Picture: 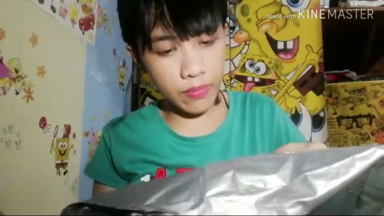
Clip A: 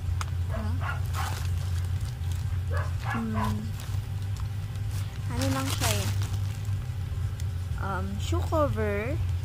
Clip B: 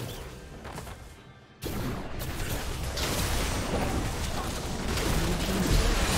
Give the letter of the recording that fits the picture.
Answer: A